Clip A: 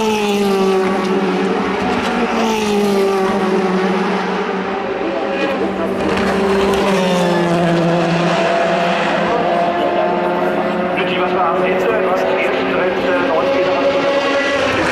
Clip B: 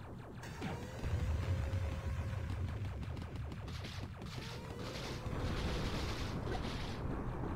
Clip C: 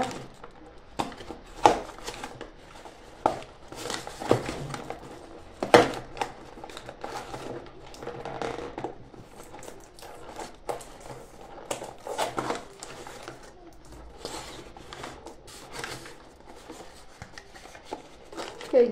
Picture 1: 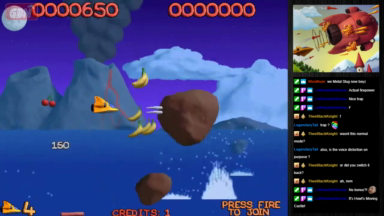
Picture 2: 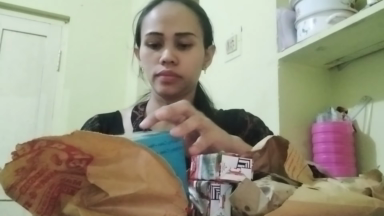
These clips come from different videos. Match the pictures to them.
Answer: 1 B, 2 C